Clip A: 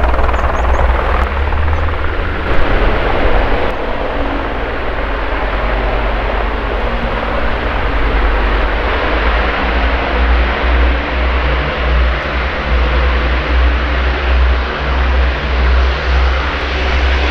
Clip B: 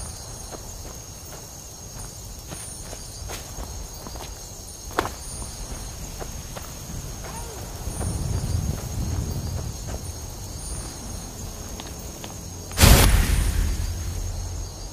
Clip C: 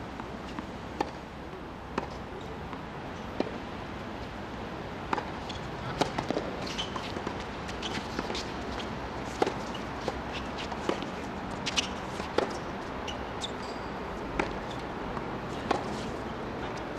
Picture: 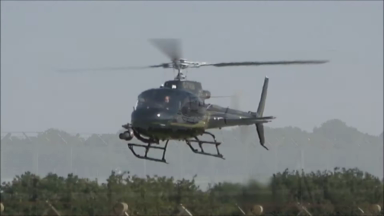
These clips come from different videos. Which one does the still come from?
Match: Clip A